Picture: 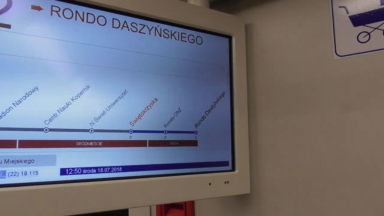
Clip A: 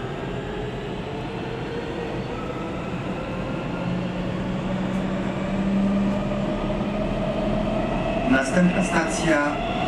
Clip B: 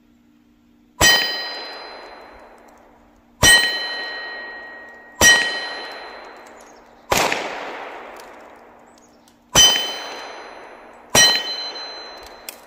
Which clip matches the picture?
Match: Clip A